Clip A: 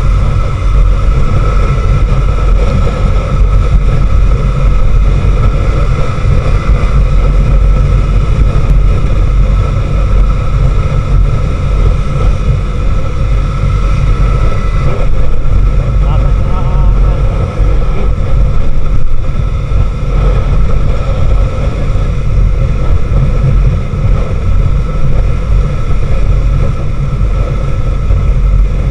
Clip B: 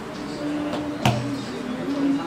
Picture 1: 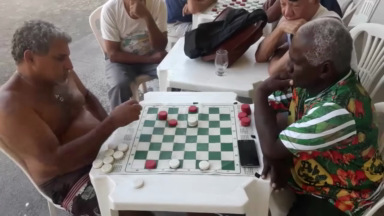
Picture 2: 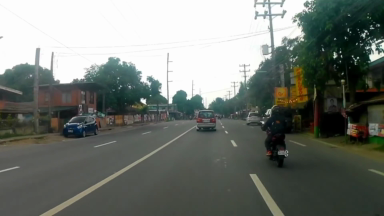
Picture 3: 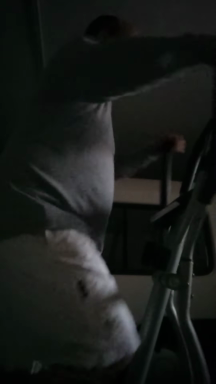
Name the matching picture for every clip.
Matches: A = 2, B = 1